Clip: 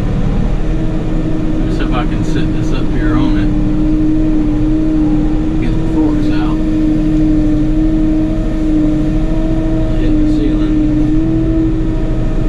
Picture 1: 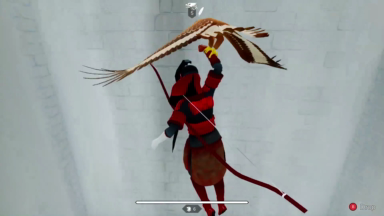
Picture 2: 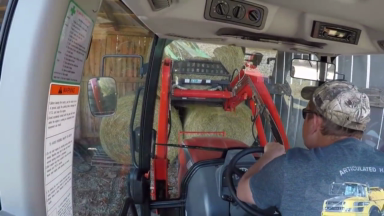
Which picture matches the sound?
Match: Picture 2